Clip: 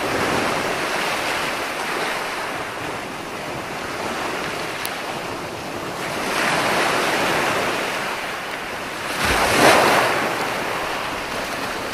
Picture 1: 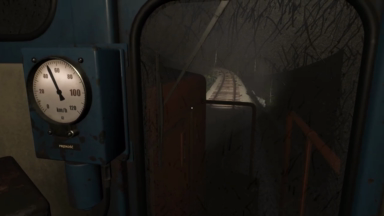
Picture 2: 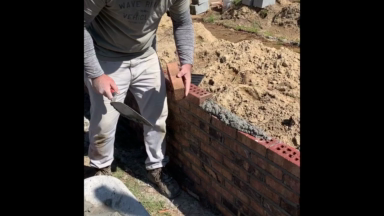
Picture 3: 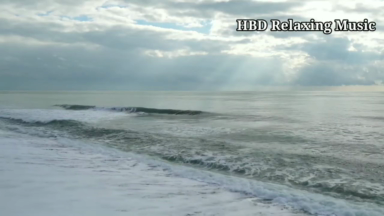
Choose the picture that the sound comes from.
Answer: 3